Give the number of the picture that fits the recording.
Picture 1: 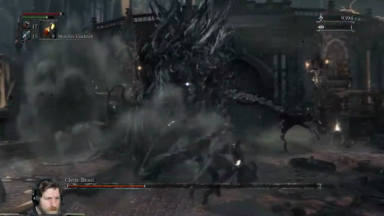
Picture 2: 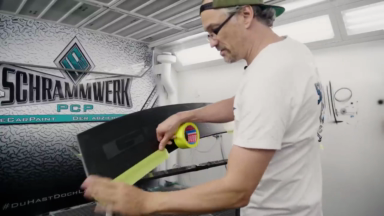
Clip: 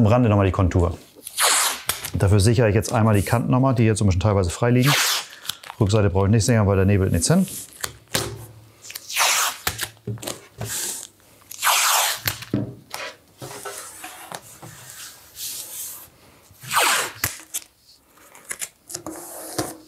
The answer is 2